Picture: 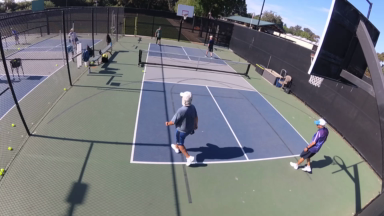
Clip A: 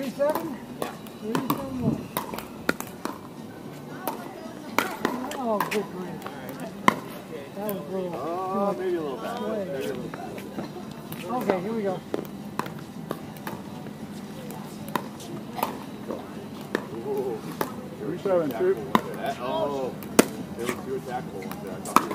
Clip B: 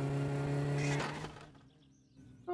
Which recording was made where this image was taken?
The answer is A